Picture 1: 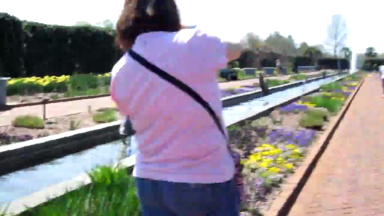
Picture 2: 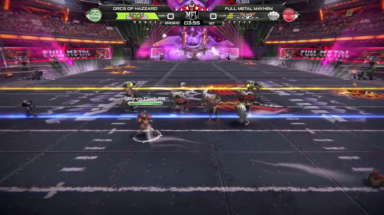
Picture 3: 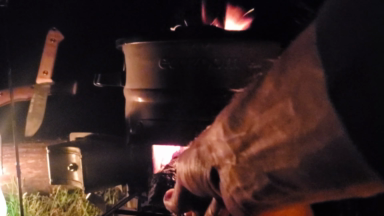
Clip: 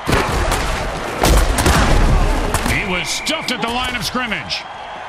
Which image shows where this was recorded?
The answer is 2